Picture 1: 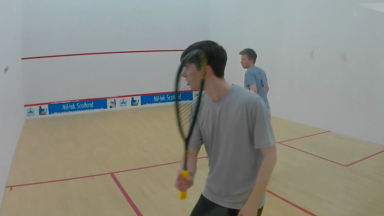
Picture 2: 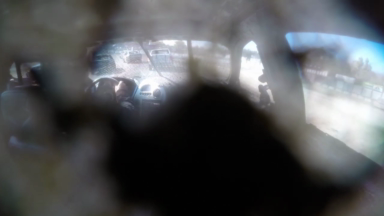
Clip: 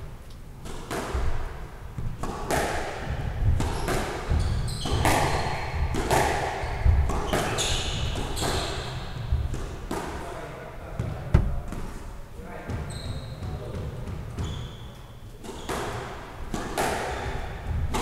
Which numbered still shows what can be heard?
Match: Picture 1